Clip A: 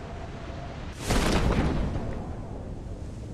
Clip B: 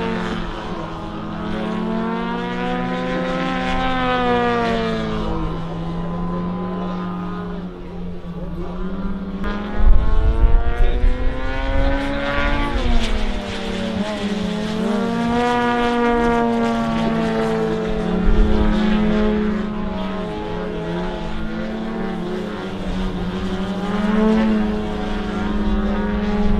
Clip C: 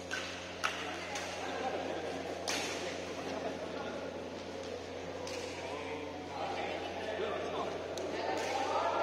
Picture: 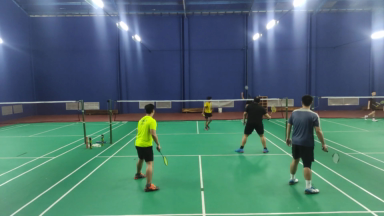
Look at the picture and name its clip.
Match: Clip C